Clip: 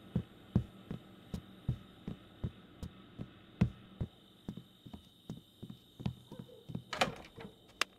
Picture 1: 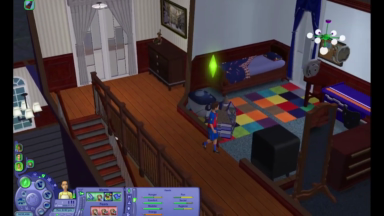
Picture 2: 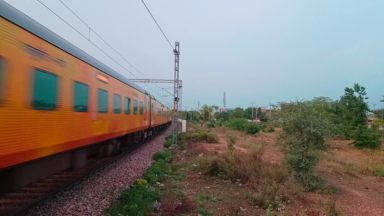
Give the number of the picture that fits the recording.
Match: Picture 1